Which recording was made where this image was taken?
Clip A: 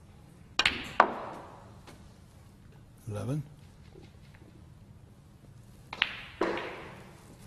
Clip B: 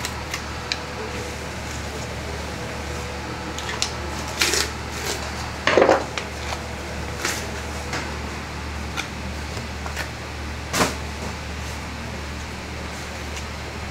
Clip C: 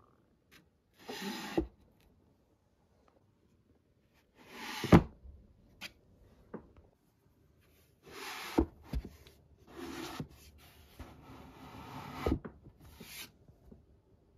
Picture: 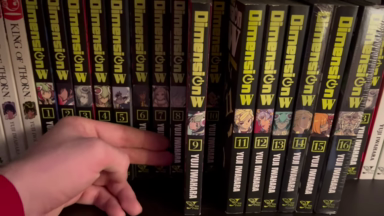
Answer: C